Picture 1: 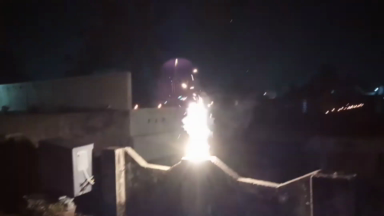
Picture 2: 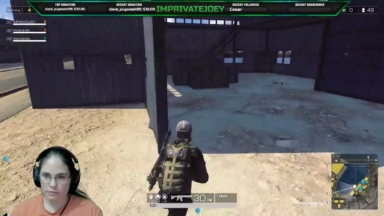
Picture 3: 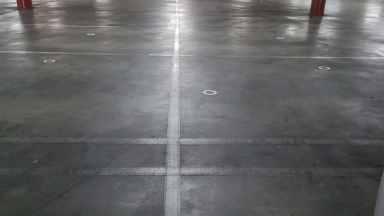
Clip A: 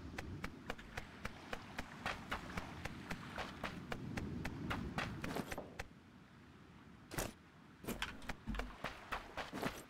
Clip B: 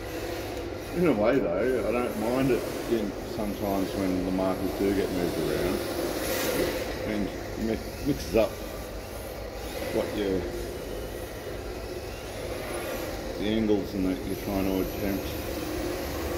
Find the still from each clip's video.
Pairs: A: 2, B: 3